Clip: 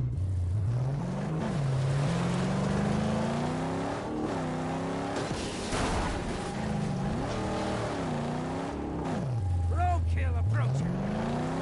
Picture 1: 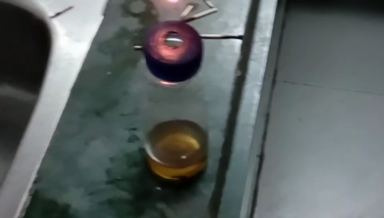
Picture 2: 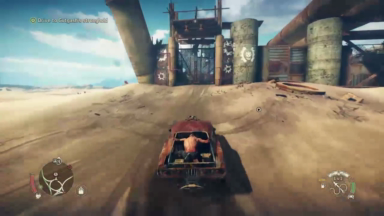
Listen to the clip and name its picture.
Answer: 2